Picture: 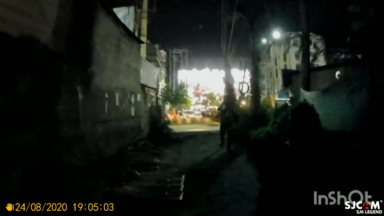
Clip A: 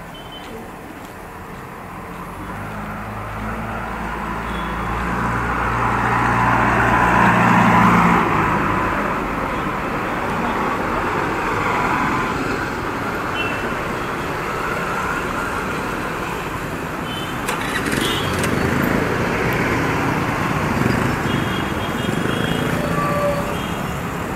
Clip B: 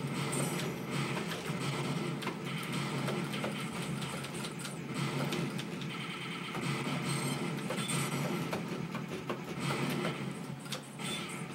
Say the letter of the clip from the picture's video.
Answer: A